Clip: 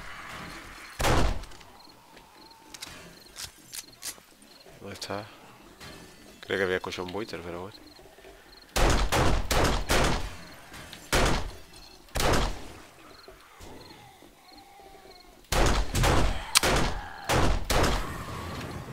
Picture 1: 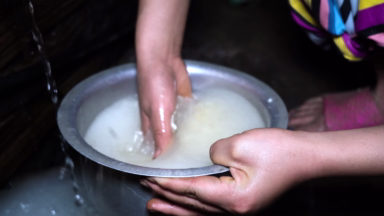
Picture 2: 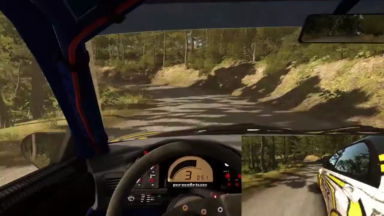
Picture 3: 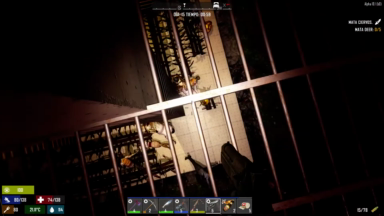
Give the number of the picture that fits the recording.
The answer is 3